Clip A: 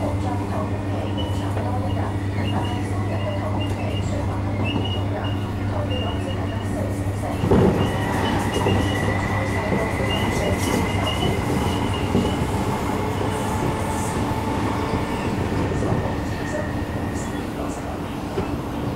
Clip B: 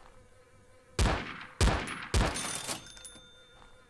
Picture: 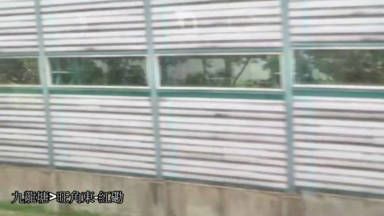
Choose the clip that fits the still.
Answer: A